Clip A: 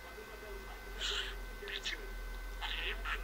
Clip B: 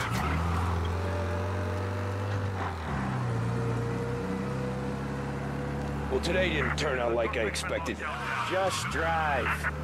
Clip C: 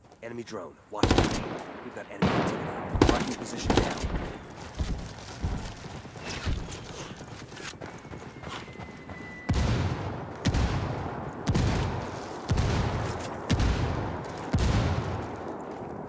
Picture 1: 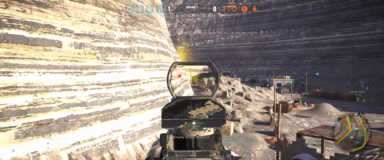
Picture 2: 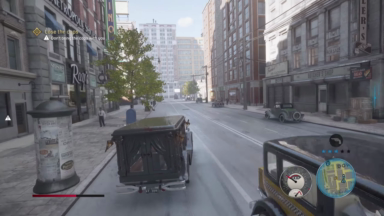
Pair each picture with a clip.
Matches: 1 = C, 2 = B